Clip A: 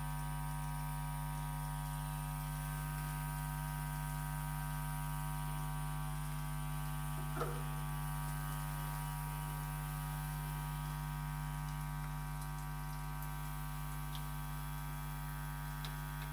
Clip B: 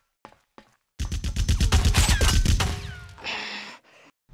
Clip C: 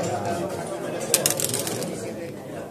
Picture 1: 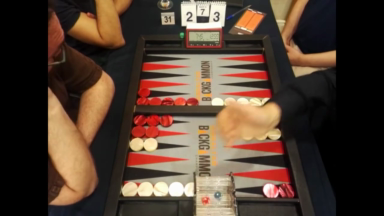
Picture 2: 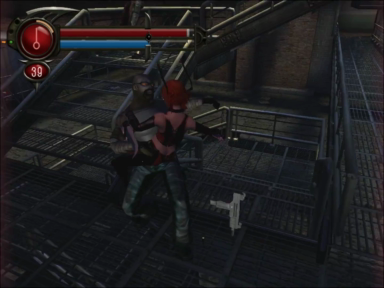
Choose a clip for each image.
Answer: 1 C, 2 B